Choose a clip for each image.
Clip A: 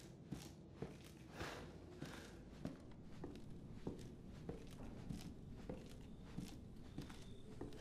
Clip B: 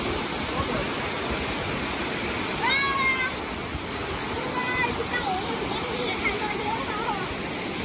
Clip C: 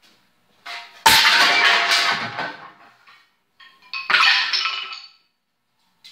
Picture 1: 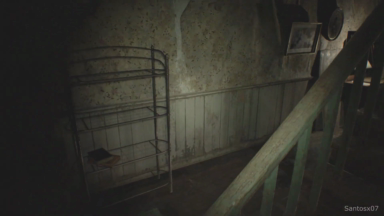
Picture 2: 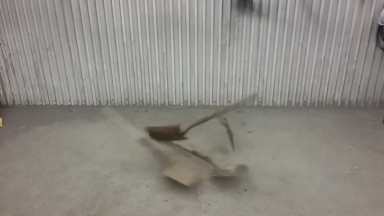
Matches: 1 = A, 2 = C